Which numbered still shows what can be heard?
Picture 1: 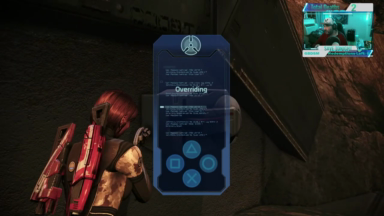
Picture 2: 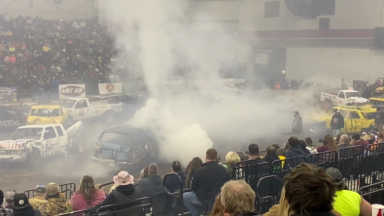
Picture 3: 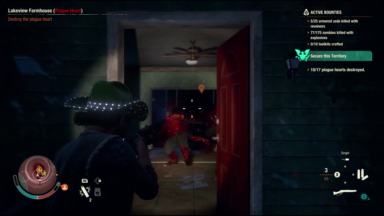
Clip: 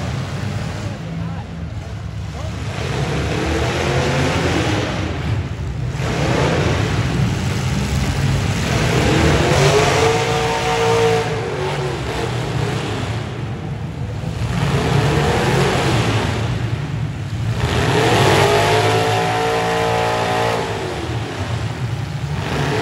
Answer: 2